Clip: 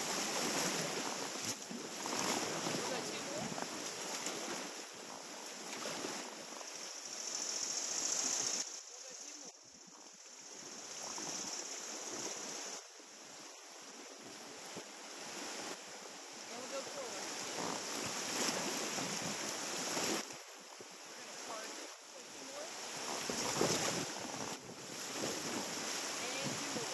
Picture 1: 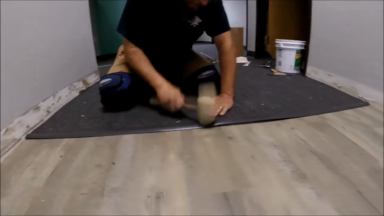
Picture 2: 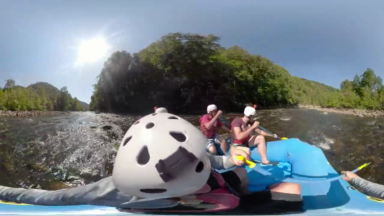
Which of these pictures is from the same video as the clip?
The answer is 2